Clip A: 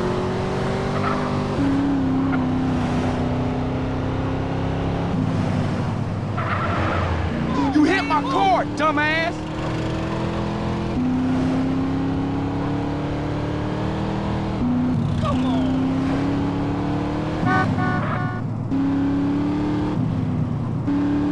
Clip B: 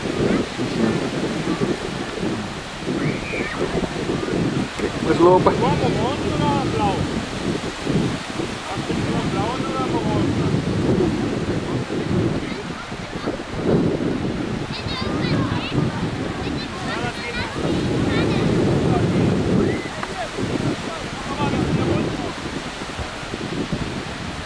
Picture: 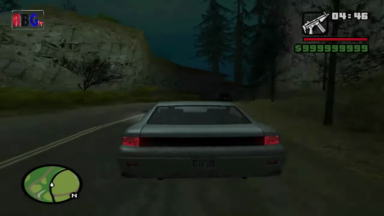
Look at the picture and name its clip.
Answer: A